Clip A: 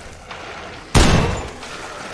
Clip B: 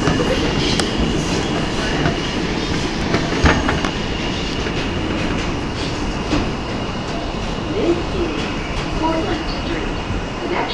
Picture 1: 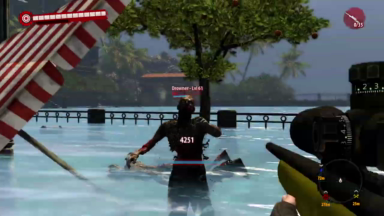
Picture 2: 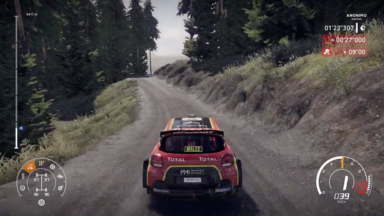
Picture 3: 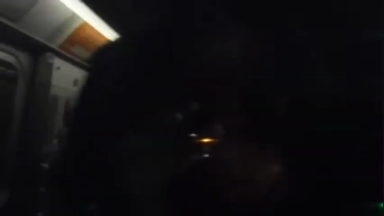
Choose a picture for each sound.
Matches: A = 1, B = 3